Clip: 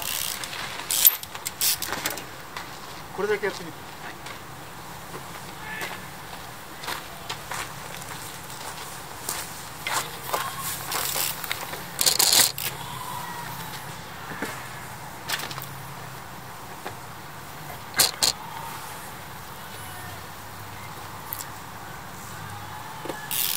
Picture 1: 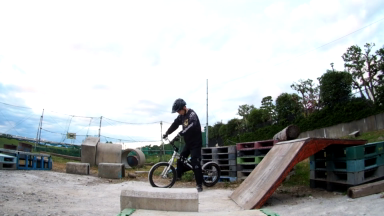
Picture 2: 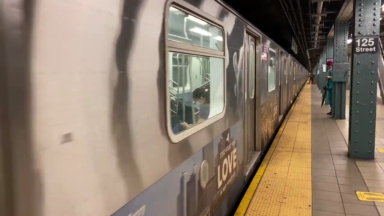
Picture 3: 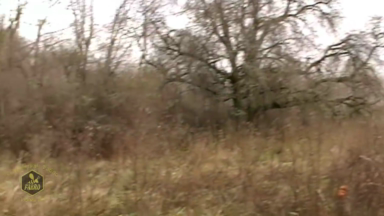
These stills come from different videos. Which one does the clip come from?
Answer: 1